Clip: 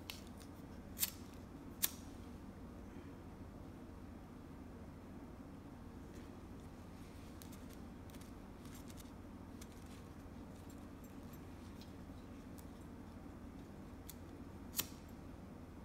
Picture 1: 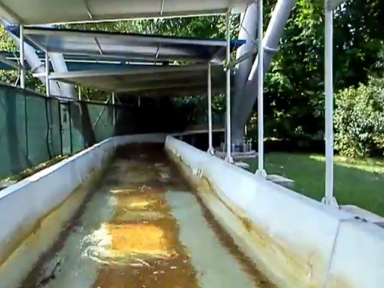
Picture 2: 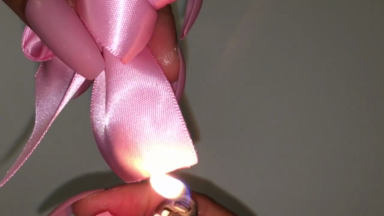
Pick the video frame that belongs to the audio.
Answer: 2